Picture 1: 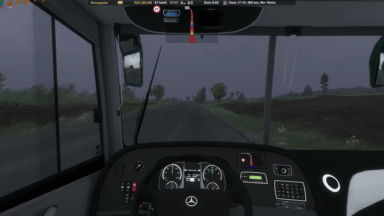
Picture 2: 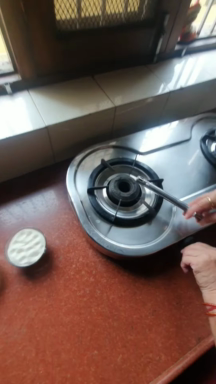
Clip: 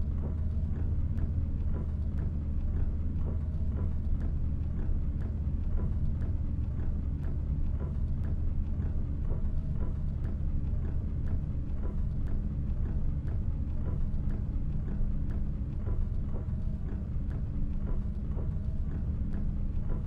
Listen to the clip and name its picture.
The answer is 1